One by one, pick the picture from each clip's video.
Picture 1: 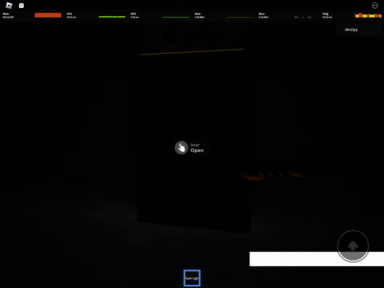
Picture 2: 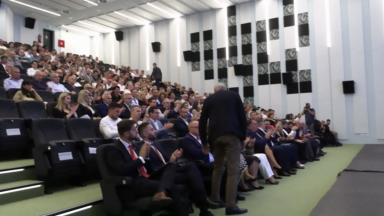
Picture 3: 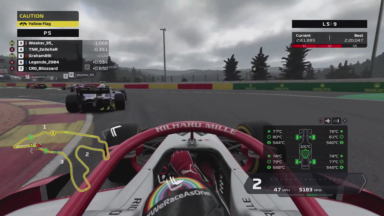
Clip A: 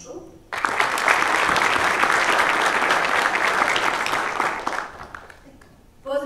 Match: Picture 2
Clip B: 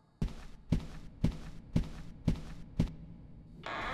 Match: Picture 1